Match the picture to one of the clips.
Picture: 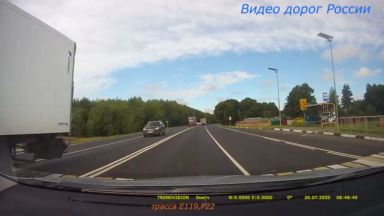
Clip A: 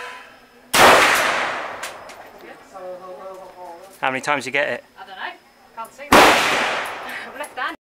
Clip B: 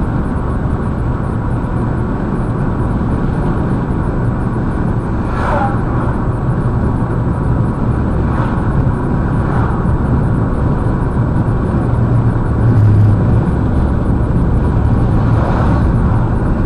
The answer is B